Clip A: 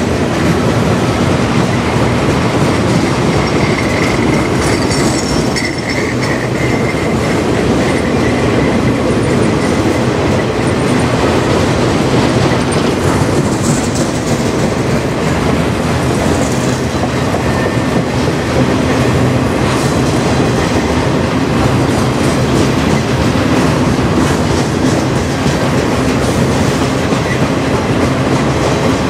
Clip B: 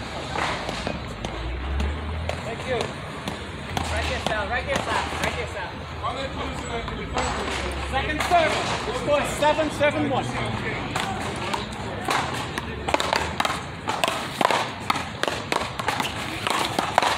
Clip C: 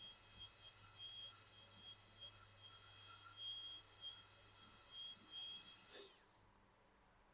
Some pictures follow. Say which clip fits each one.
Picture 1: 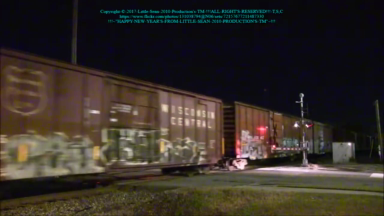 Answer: A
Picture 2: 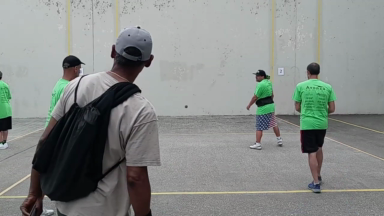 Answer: B